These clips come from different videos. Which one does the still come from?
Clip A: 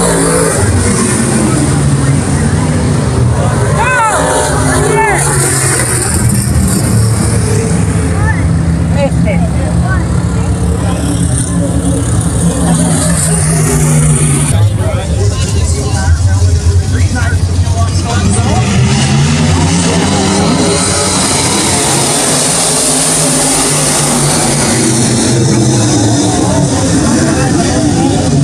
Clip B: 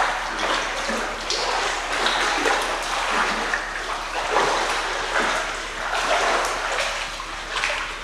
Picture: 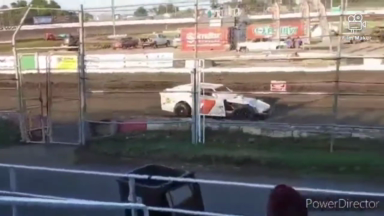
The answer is A